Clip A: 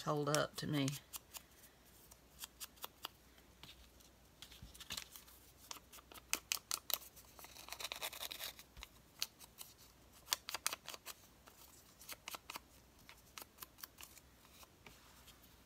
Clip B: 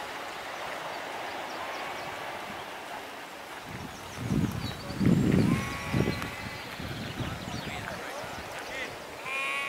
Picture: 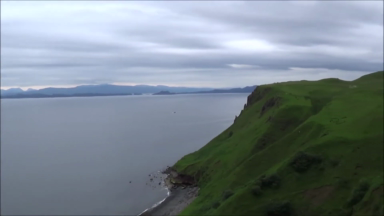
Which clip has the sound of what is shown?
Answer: B